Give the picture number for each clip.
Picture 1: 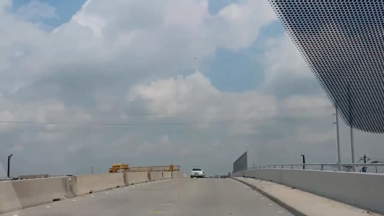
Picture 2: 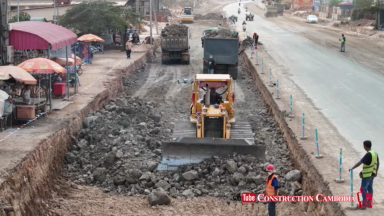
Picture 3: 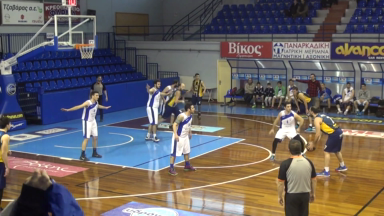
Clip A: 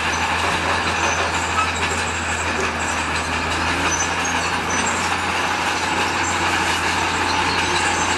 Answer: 2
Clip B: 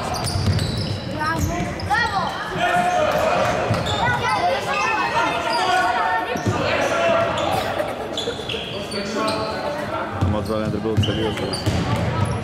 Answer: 3